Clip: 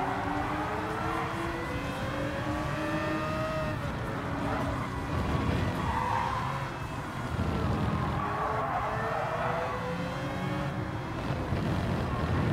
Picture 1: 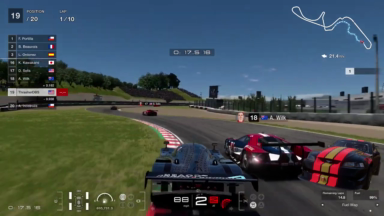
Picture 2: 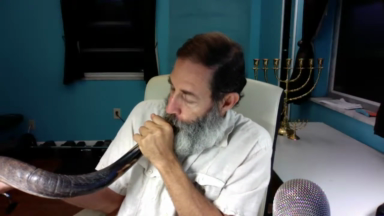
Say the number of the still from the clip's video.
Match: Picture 1